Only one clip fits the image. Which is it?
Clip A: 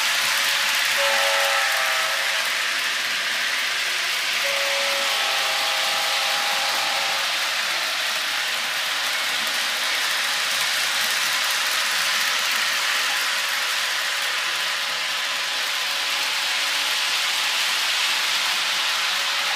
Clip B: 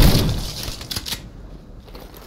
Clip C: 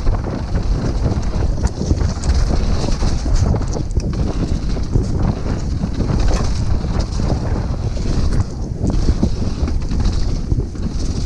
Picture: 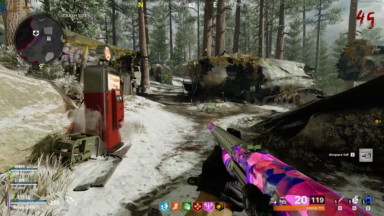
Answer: B